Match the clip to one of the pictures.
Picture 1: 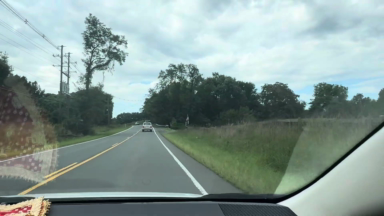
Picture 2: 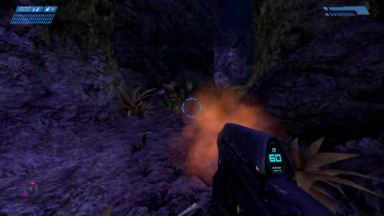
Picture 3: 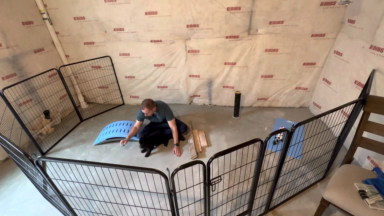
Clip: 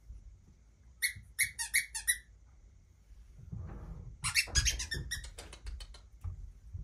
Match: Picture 3